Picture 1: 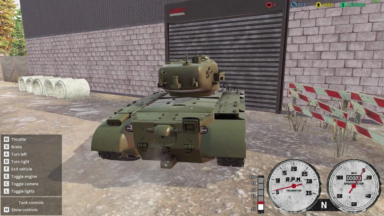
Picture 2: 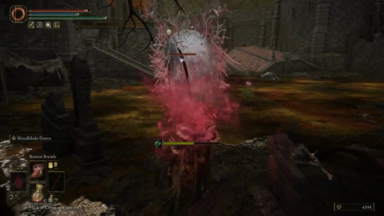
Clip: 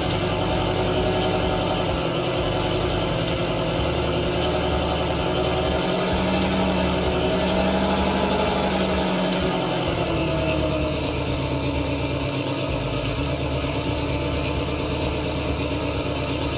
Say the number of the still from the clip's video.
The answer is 1